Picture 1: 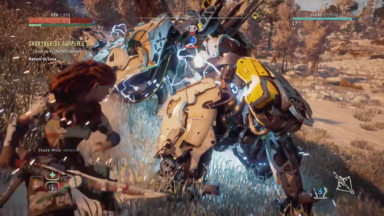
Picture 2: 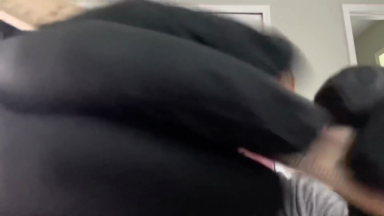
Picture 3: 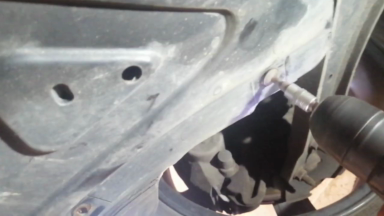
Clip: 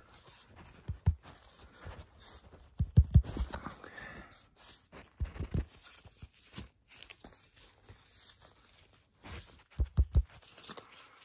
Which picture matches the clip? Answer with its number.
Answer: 2